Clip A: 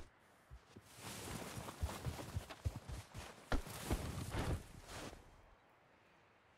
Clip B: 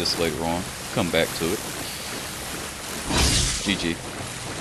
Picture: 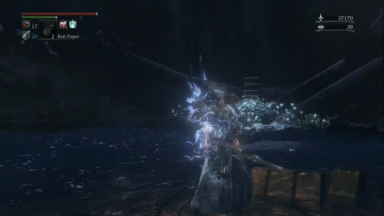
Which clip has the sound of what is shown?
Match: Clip B